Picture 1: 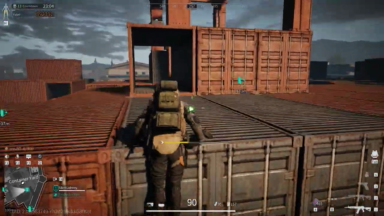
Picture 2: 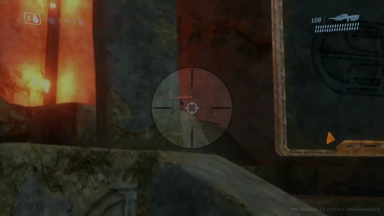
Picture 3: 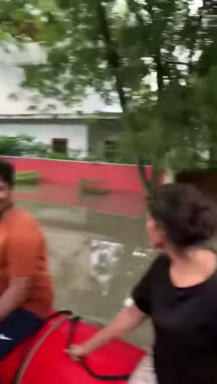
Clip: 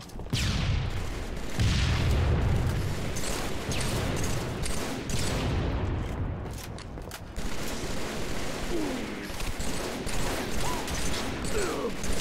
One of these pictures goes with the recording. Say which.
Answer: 2